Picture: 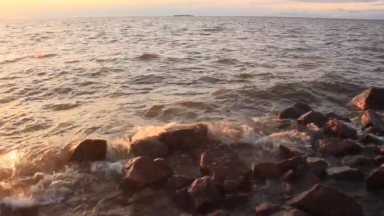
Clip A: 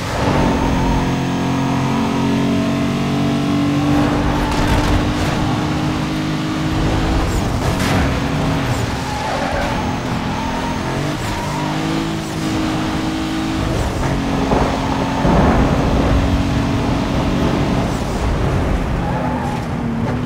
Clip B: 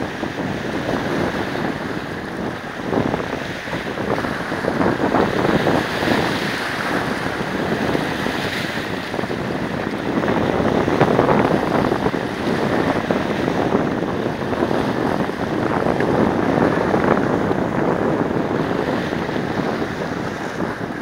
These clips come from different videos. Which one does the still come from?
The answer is B